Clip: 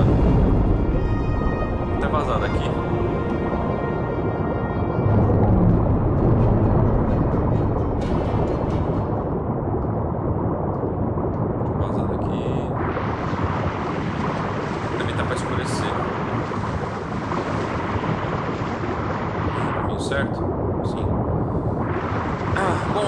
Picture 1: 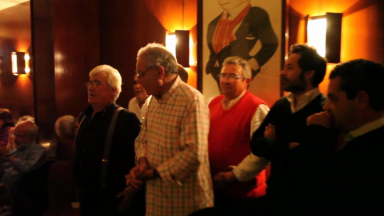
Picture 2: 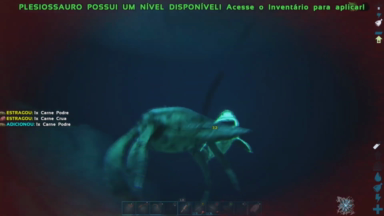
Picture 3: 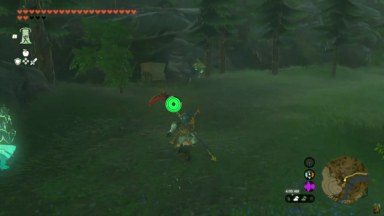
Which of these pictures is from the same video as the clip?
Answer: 2